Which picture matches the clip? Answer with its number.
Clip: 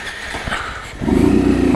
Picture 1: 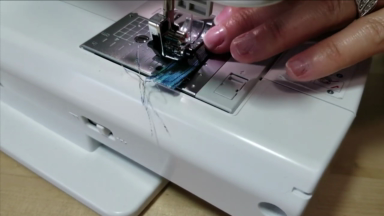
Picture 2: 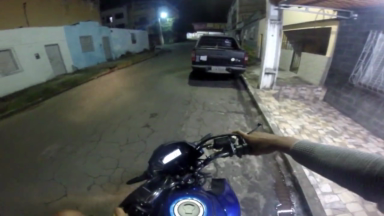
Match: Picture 2